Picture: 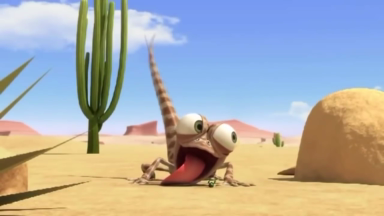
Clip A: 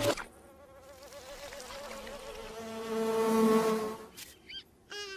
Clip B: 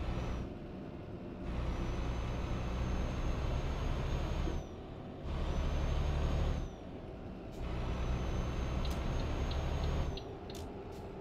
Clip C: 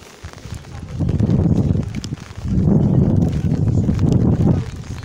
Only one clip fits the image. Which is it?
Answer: A